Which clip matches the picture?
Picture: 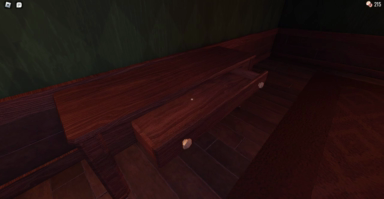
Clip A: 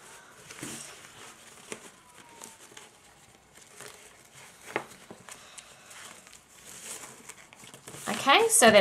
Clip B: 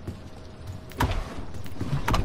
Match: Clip B